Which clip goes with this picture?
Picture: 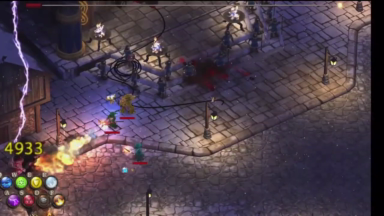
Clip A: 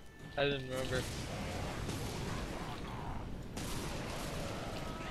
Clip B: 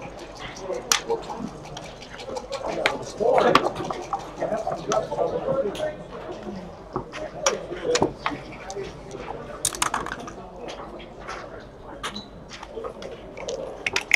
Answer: A